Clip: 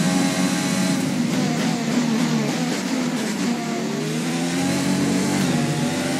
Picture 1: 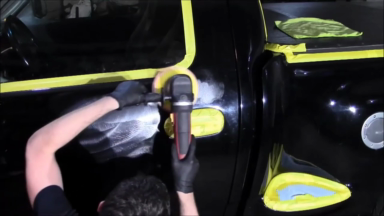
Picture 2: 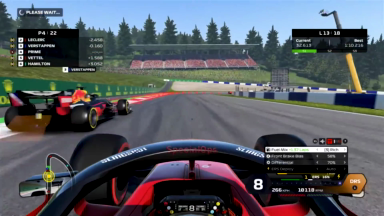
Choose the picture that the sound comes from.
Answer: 2